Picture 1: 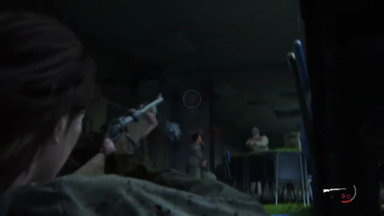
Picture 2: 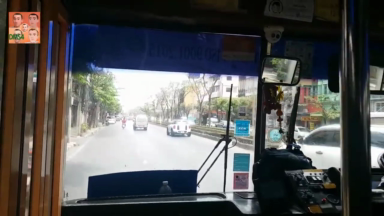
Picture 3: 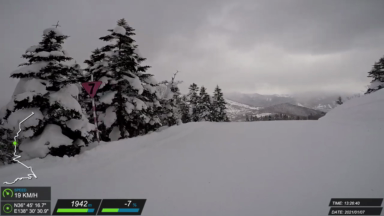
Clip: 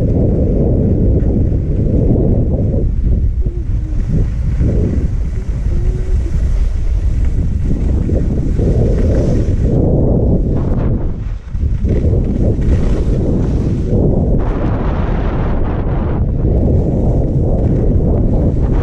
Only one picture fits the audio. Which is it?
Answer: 3